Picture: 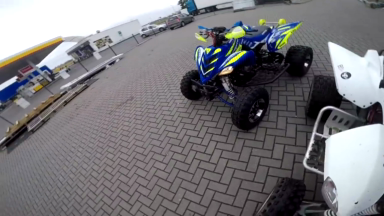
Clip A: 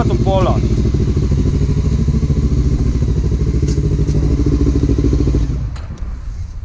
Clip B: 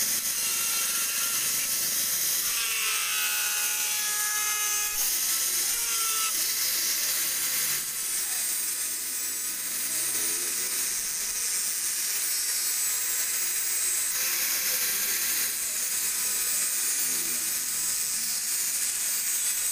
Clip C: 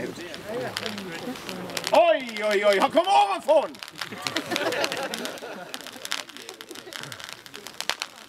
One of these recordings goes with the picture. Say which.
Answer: A